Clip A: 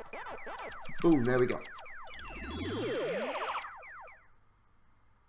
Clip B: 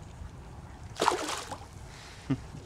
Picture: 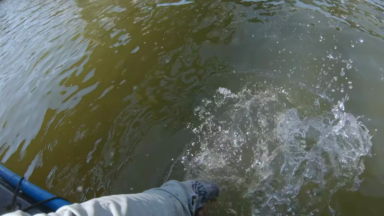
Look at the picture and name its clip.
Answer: B